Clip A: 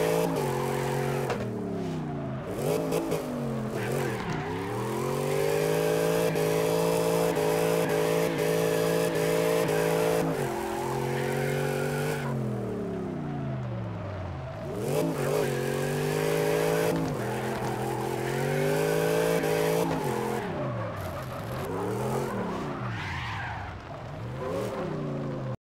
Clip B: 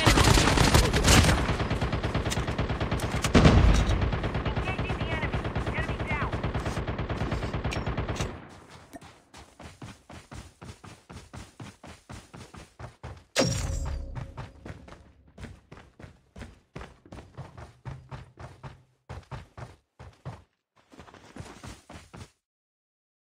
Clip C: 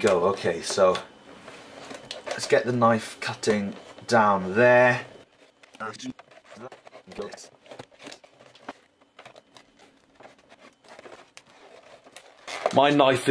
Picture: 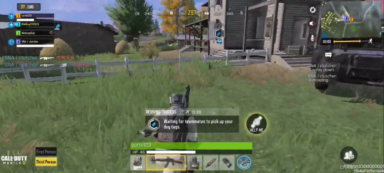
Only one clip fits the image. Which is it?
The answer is B